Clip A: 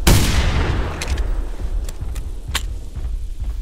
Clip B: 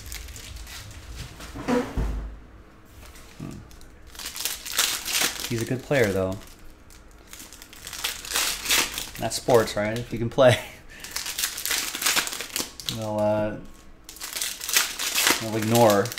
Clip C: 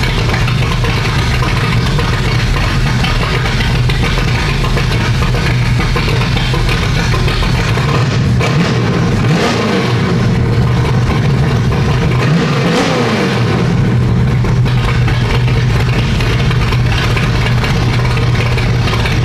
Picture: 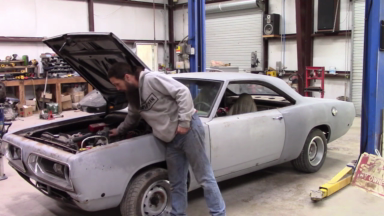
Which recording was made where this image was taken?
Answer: C